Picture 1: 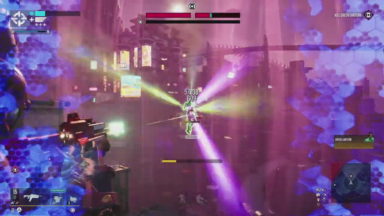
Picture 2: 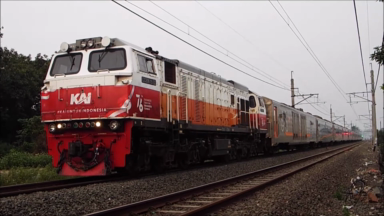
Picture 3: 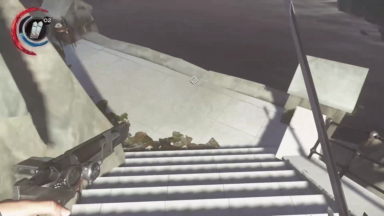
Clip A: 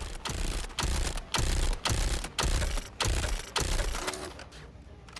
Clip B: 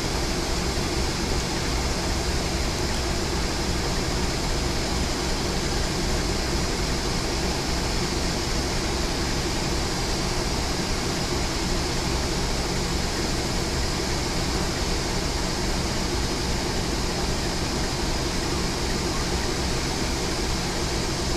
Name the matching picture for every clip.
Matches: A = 1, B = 2